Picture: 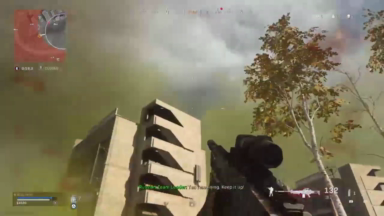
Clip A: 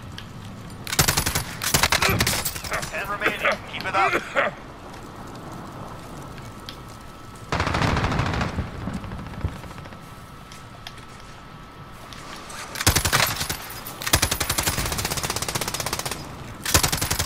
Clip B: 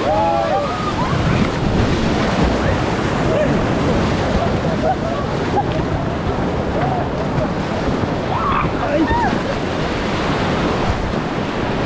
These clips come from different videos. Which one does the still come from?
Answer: A